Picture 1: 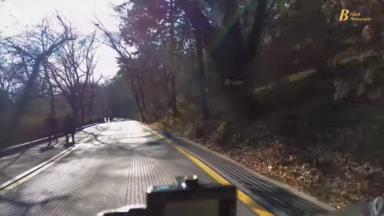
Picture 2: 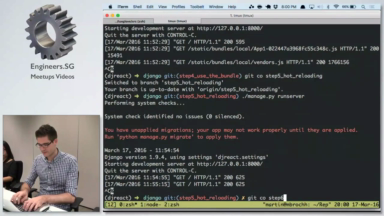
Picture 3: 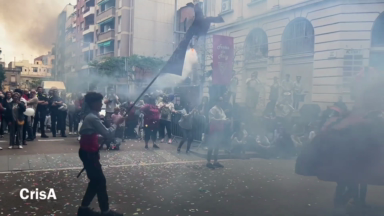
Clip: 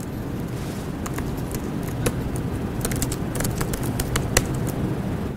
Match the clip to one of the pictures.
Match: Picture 2